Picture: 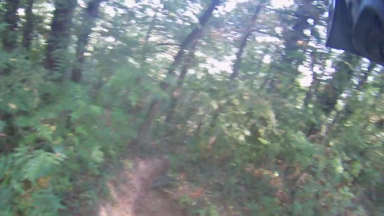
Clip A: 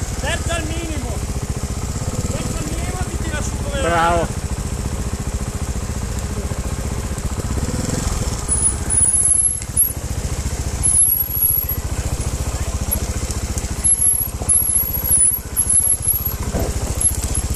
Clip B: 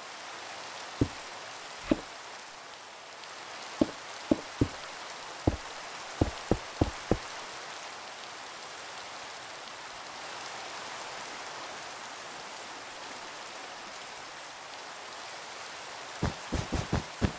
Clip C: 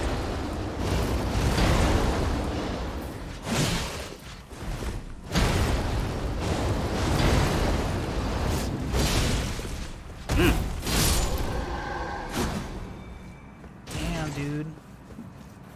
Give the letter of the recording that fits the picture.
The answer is A